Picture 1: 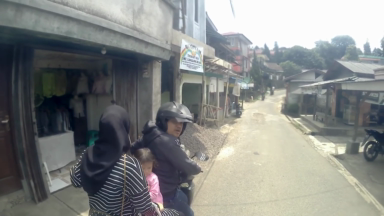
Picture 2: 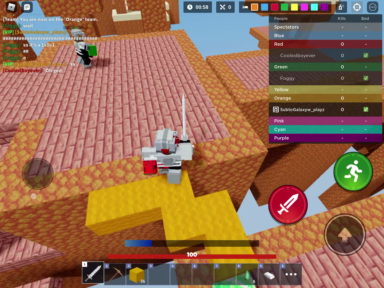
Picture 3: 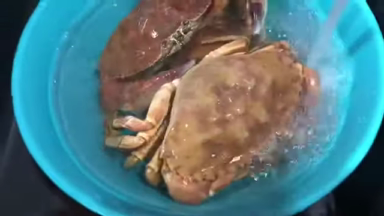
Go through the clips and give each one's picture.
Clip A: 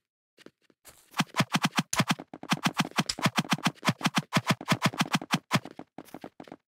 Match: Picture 2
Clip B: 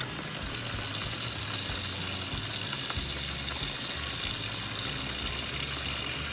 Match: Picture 3